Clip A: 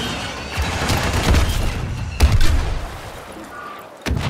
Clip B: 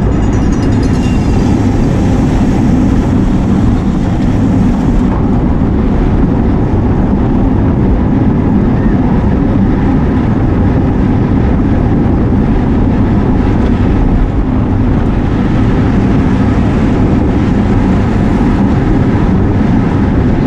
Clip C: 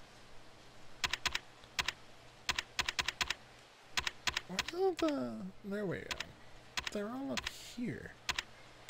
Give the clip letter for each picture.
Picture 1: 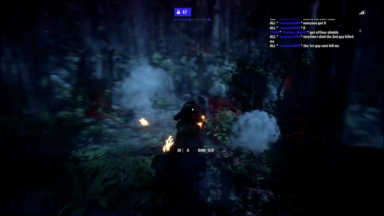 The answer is A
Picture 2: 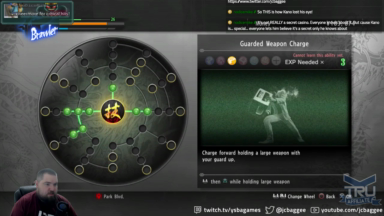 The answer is C